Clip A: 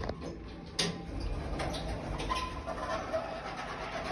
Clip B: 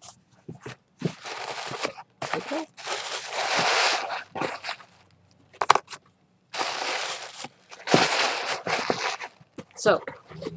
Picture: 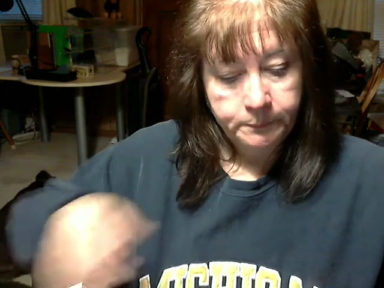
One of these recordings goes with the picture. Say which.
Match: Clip B